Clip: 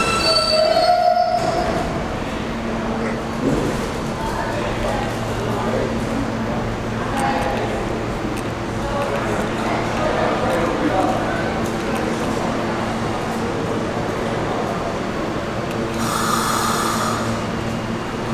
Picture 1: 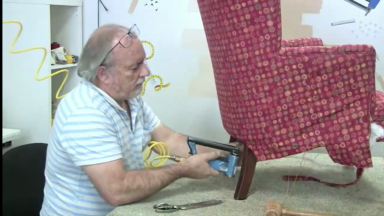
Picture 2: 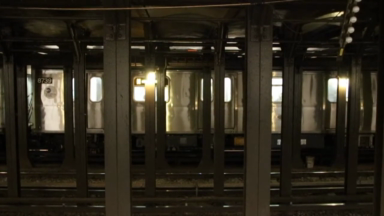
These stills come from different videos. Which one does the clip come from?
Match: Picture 2